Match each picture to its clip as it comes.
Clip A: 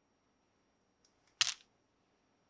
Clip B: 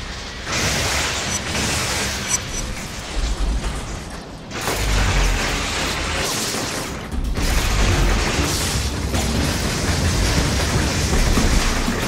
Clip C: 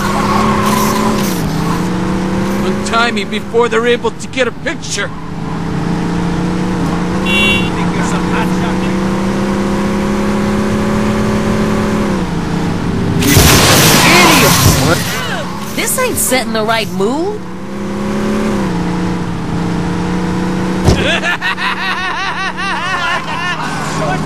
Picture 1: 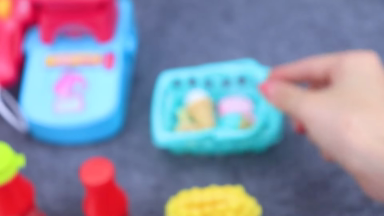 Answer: A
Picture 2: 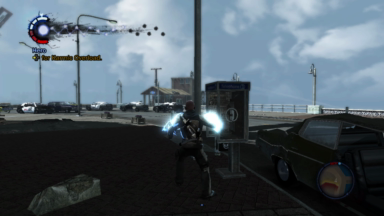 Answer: B